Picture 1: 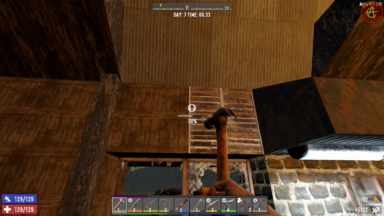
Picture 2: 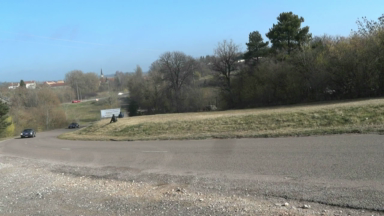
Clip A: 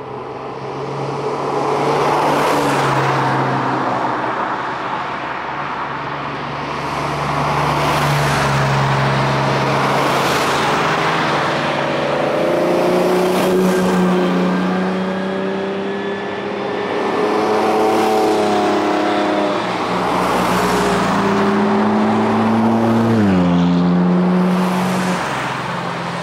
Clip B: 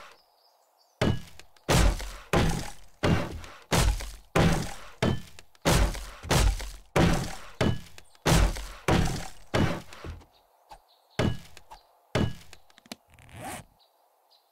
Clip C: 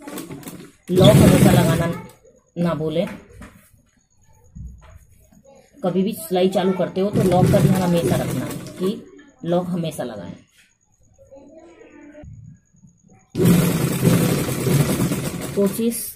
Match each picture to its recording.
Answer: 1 B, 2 A